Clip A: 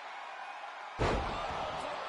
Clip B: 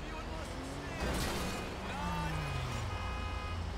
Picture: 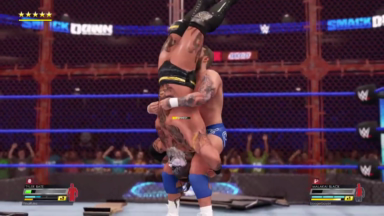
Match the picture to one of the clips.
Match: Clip A